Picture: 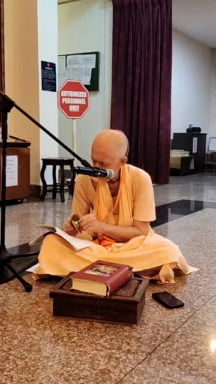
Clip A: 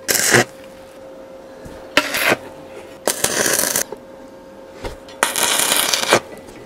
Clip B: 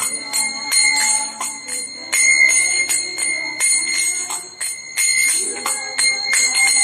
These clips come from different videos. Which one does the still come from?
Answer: B